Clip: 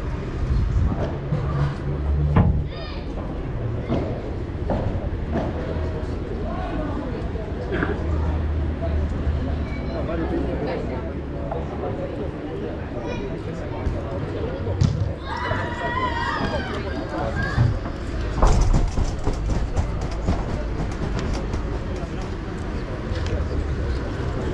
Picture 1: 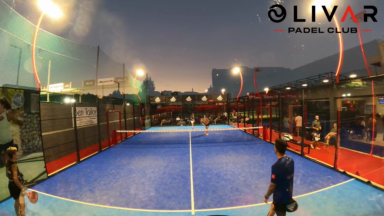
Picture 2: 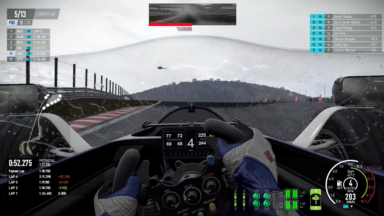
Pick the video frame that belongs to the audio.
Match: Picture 1